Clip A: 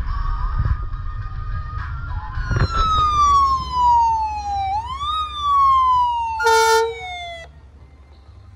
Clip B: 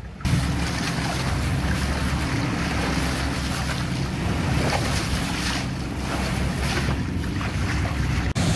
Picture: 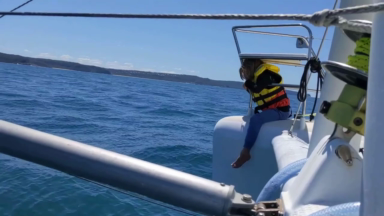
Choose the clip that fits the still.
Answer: B